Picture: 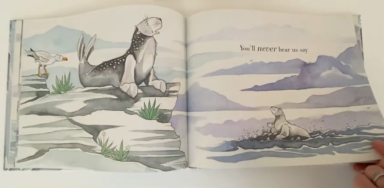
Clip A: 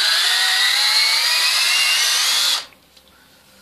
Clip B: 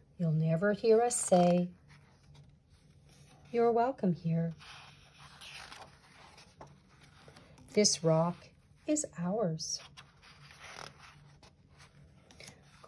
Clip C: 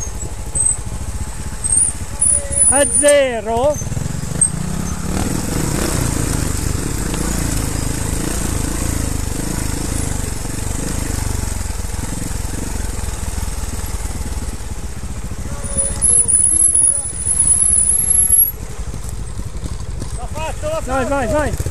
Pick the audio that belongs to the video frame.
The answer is B